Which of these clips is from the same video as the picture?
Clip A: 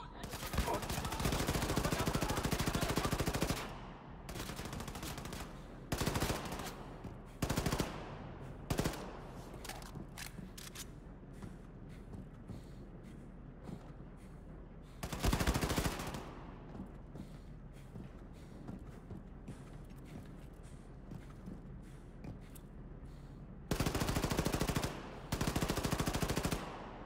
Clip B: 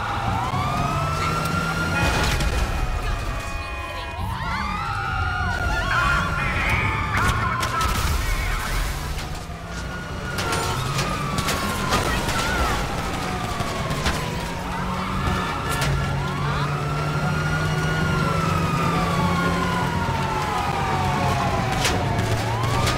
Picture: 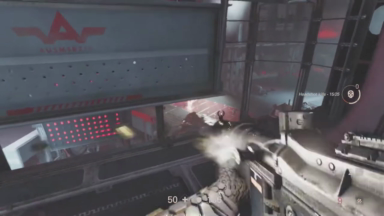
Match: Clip A